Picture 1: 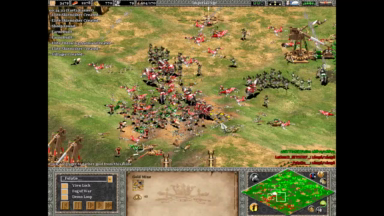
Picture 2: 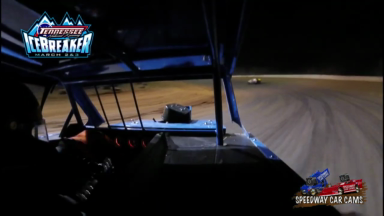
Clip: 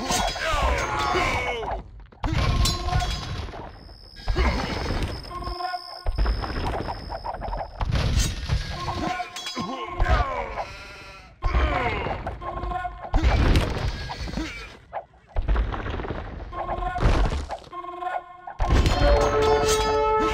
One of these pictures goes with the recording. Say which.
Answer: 1